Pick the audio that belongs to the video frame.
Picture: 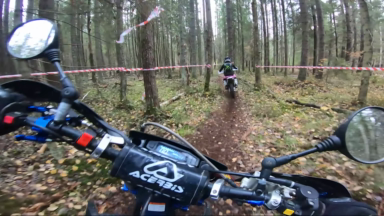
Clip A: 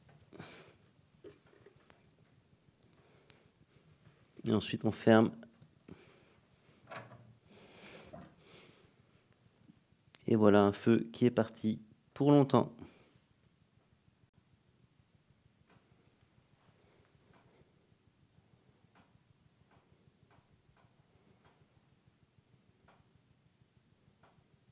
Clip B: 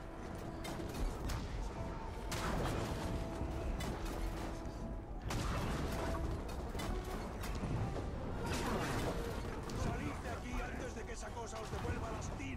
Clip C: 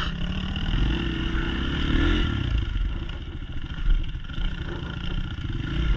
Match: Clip C